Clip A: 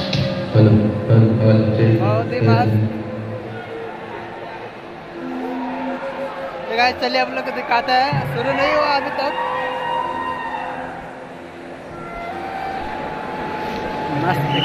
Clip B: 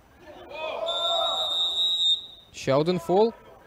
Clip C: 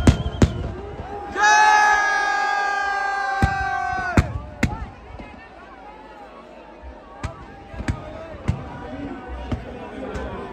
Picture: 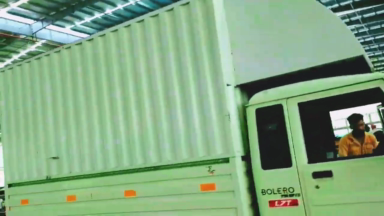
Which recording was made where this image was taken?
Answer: A